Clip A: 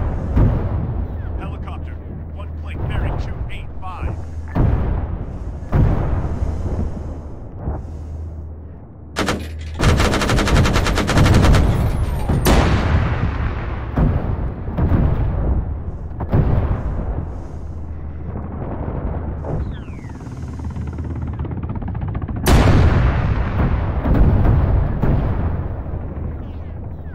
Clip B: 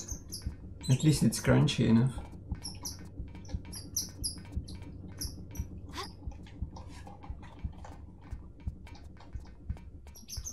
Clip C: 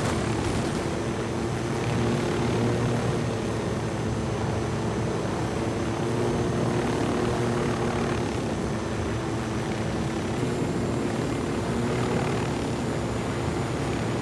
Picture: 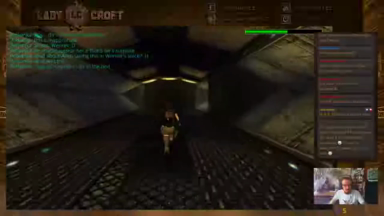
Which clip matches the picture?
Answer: B